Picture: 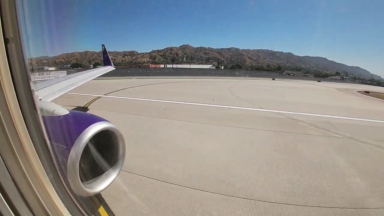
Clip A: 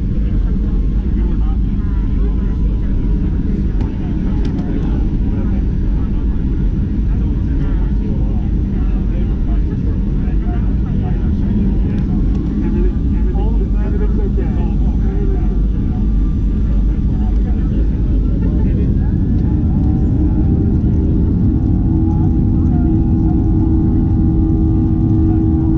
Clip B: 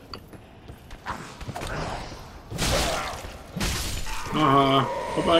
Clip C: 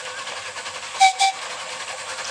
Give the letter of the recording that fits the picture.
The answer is A